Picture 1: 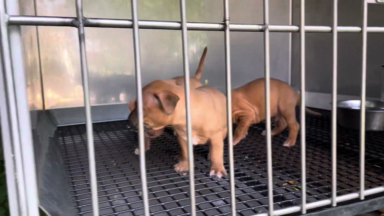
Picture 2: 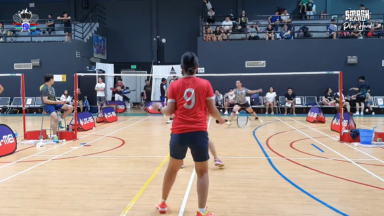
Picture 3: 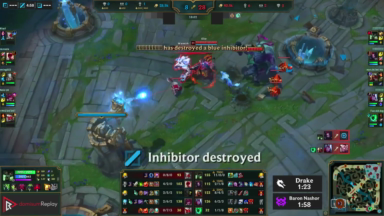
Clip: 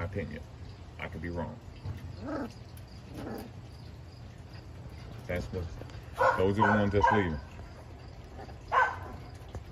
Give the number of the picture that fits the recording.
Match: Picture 1